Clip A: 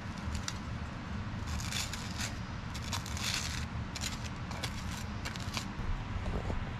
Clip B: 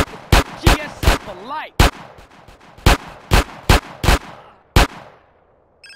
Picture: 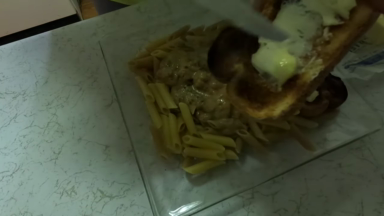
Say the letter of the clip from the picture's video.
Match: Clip A